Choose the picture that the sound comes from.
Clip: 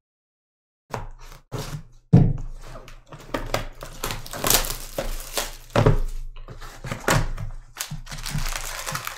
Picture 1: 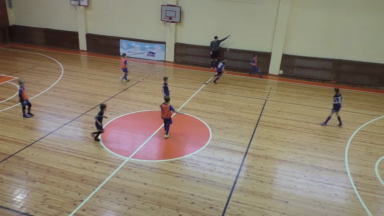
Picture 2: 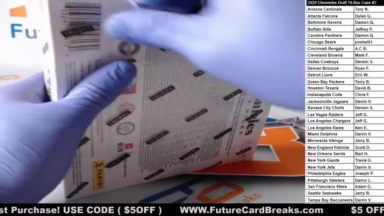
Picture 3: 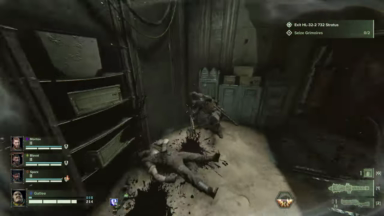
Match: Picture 2